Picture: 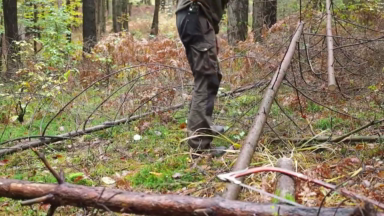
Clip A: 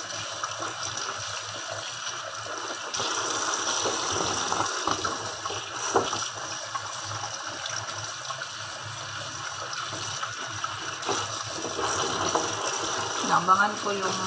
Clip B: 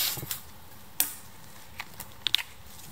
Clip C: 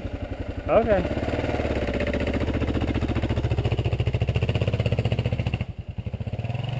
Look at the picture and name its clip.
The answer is B